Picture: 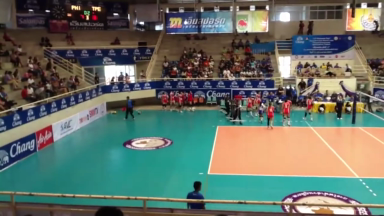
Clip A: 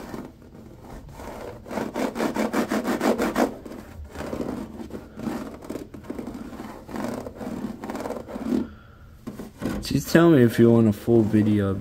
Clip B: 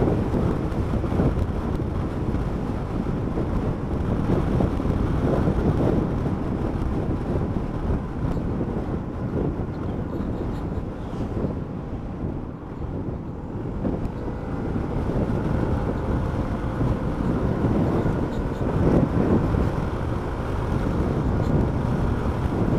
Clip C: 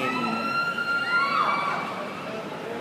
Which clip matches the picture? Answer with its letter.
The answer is C